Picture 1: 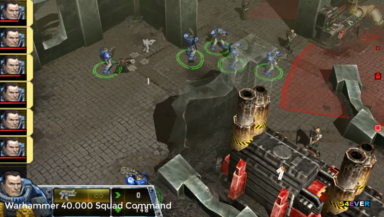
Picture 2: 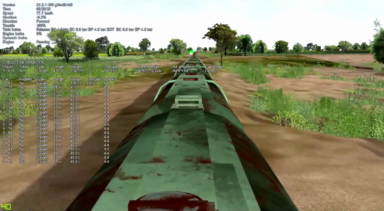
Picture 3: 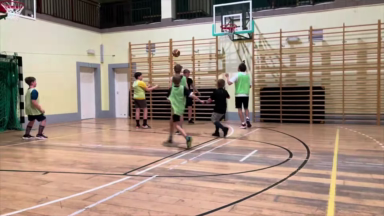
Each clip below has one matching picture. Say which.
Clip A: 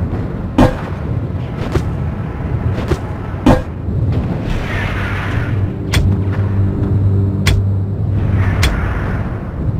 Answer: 1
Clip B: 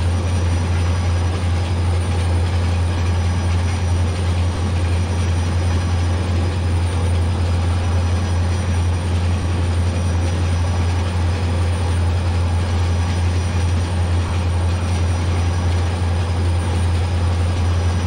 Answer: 2